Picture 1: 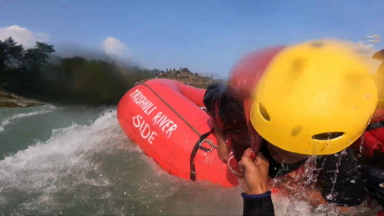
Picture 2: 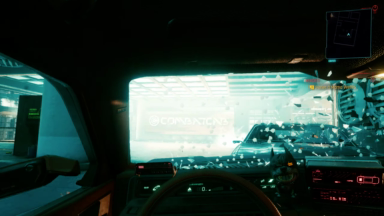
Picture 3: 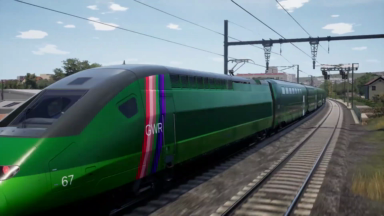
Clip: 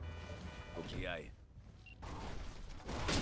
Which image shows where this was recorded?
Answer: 2